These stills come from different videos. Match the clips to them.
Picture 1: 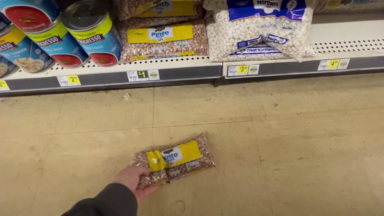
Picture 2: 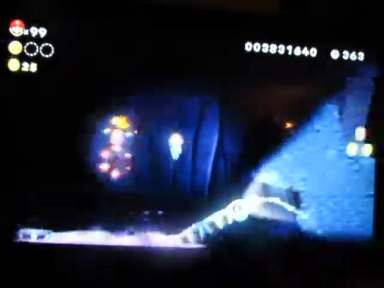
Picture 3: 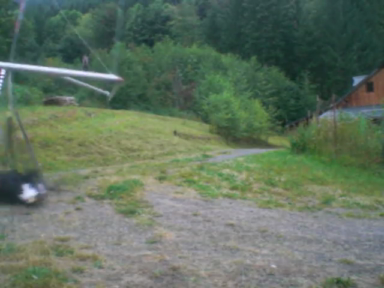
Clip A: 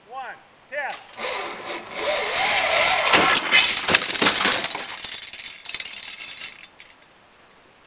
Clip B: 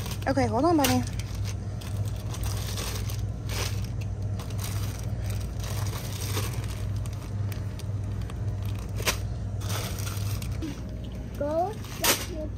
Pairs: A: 3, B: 1